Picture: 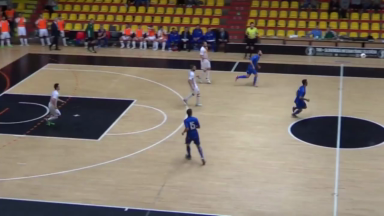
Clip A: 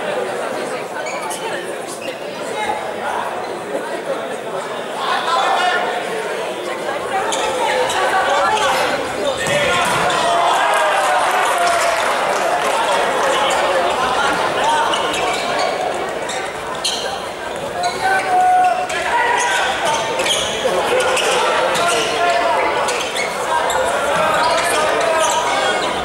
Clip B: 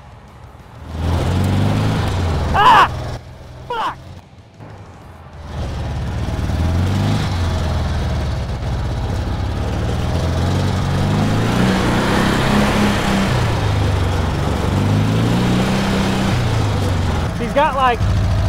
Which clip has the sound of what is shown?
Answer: A